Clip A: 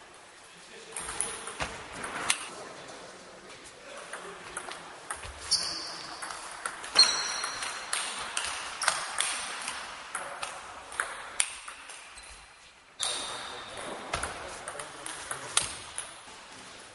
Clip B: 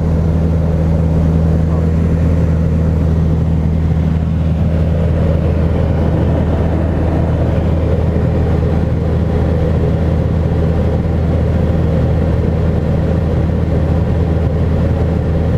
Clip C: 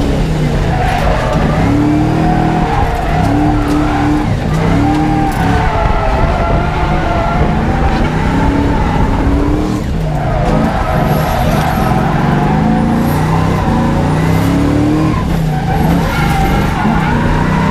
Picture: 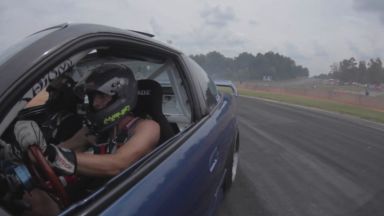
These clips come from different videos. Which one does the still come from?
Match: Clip C